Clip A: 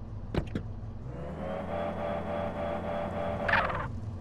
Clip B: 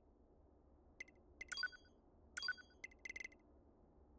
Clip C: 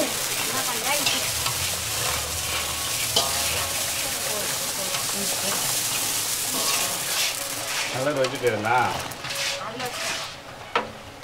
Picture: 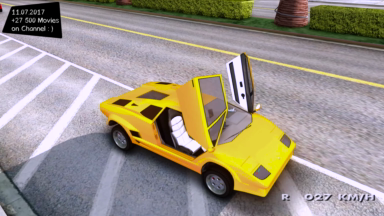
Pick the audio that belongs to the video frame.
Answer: A